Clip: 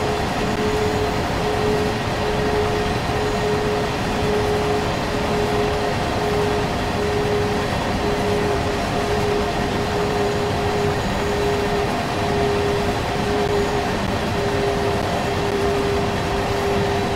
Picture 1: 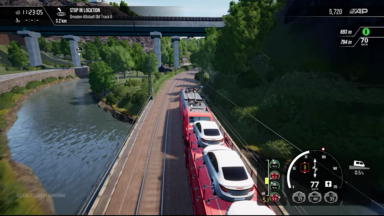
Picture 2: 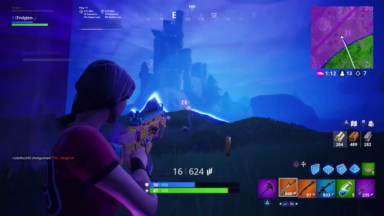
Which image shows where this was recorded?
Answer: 1